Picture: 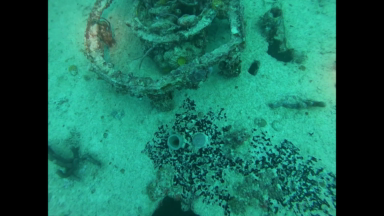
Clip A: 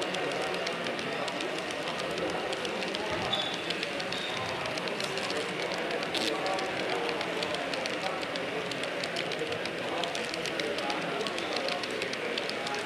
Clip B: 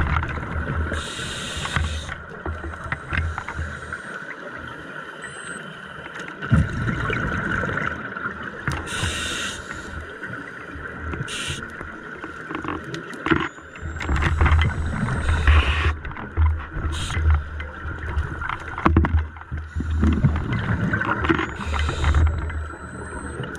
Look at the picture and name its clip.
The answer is B